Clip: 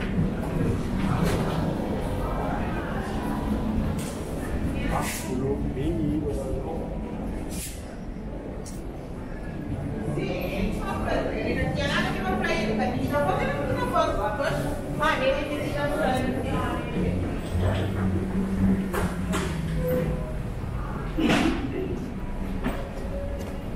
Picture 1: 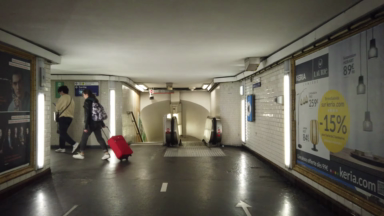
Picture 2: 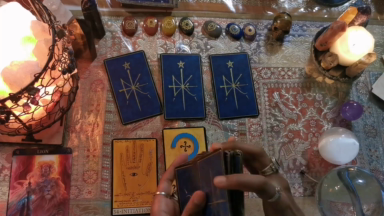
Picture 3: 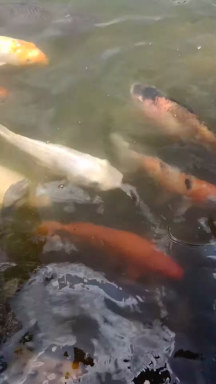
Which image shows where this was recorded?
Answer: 1